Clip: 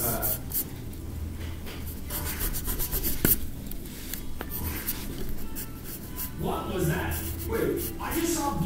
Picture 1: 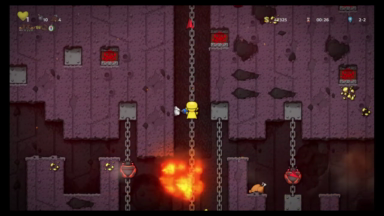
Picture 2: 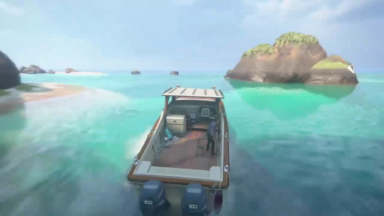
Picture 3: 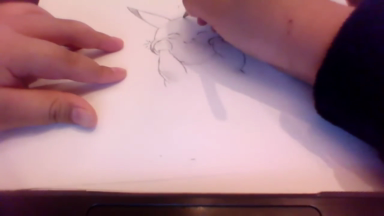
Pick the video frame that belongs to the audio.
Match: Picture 3